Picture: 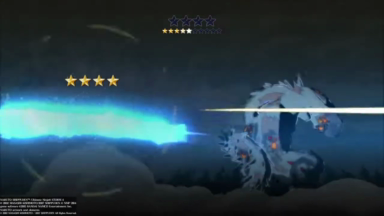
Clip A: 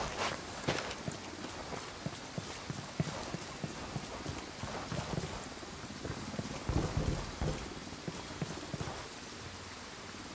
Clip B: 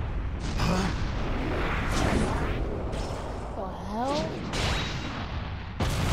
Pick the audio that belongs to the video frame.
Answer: B